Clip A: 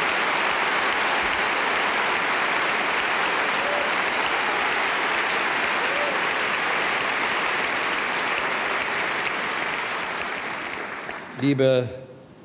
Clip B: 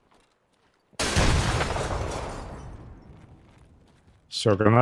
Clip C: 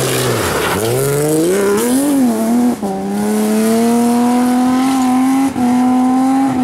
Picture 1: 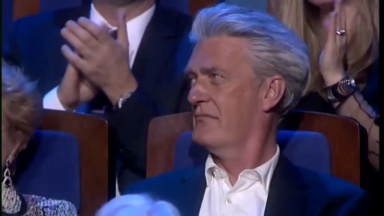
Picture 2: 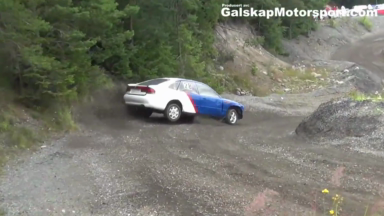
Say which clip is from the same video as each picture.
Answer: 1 A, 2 C